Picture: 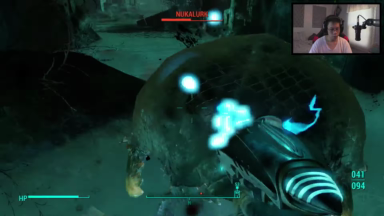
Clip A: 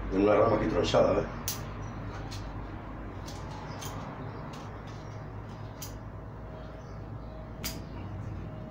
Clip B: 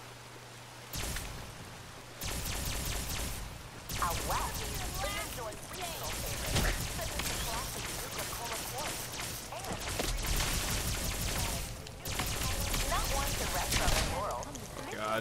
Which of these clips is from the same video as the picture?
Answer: B